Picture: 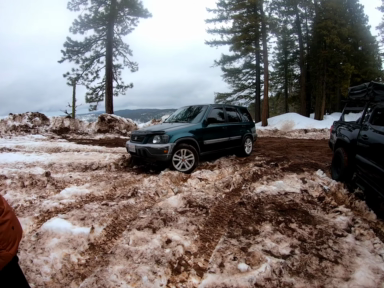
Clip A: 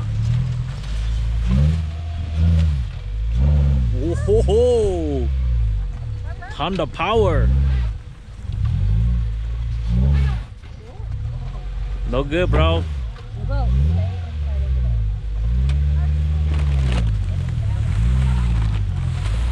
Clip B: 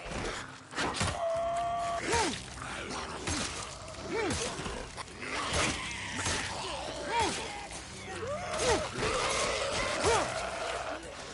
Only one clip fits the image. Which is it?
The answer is A